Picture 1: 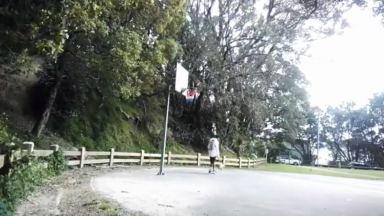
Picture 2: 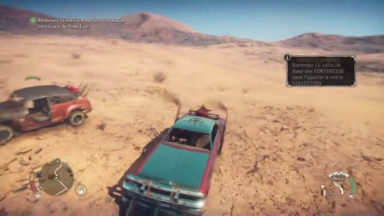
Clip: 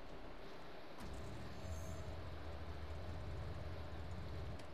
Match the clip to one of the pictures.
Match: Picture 2